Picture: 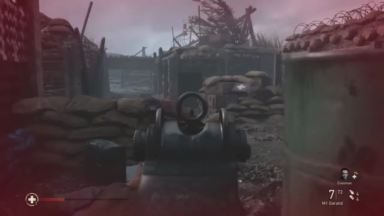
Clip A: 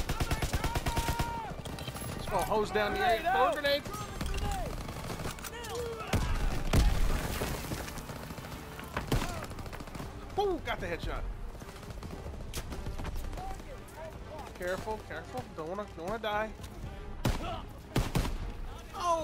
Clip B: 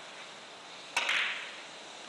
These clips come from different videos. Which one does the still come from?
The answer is A